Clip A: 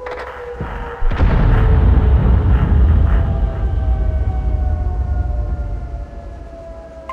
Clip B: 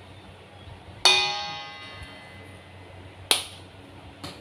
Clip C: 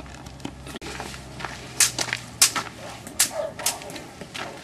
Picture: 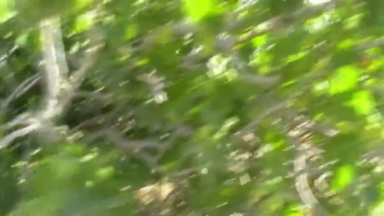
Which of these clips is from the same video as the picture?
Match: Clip C